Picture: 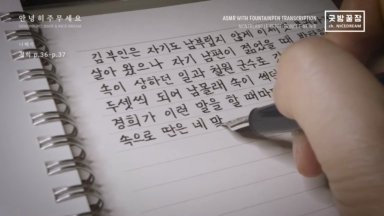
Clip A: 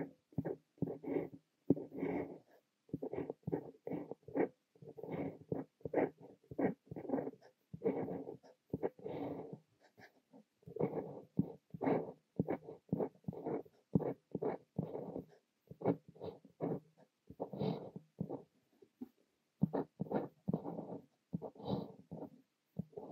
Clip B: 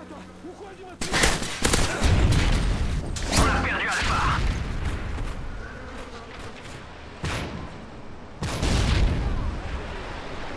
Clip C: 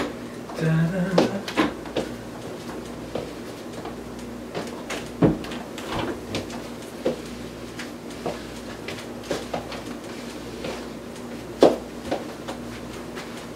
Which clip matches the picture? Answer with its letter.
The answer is A